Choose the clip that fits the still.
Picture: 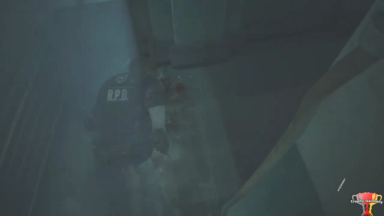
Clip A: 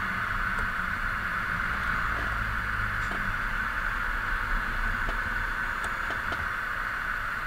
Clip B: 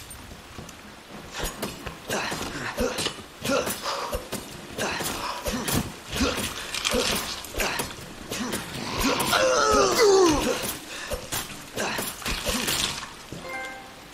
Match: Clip B